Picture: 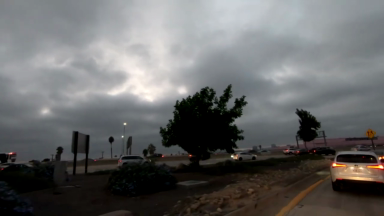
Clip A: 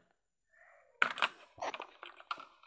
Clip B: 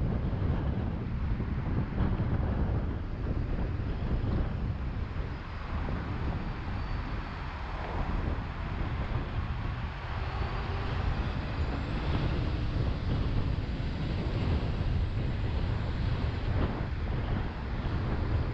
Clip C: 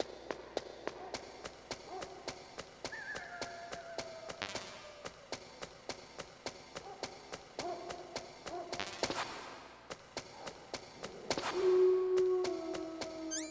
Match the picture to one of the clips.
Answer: B